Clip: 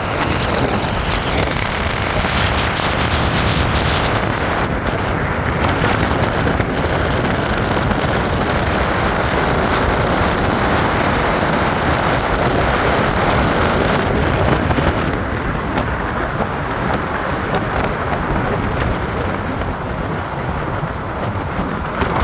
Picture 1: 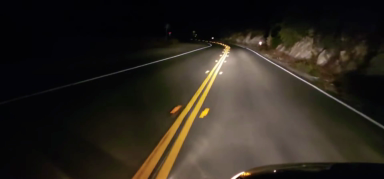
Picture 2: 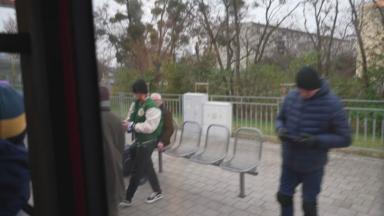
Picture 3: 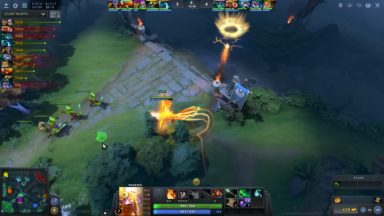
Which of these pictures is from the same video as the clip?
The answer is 1